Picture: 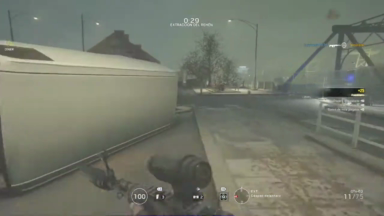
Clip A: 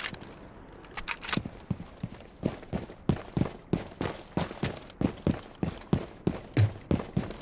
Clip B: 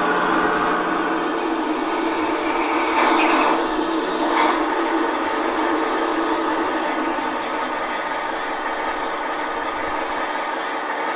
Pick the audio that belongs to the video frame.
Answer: A